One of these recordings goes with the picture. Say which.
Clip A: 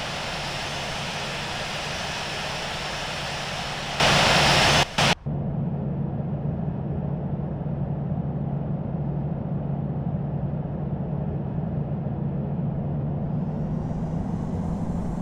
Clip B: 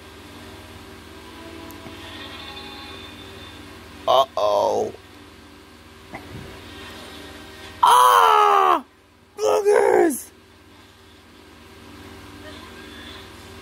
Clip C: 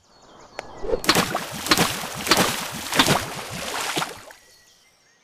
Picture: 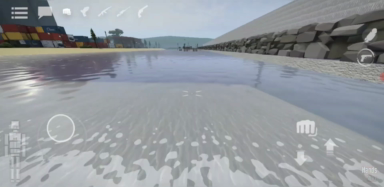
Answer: C